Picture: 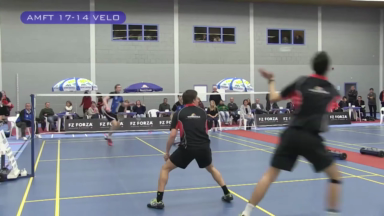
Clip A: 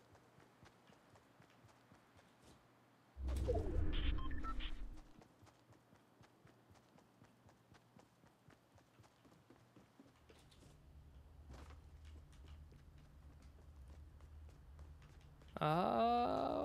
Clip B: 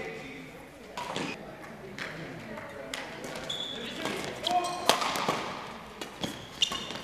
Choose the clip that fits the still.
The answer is B